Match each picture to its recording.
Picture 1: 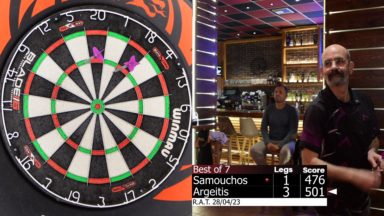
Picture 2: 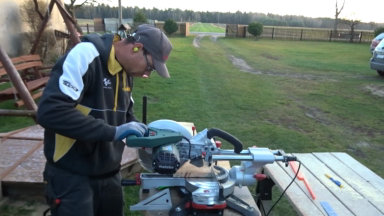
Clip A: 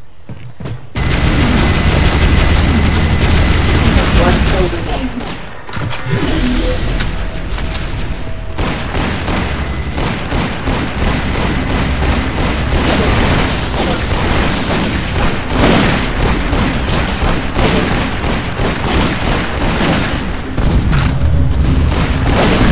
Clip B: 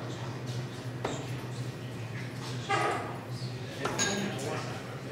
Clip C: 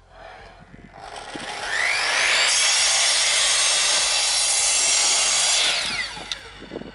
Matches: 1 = B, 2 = C